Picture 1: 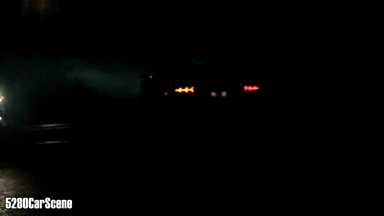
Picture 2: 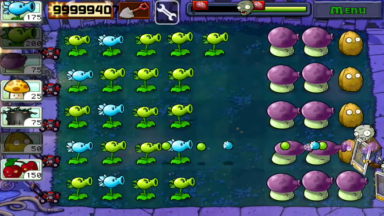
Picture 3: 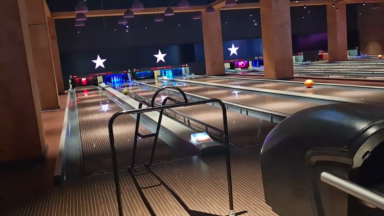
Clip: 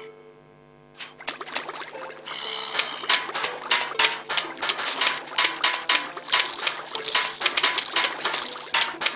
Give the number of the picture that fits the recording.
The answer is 2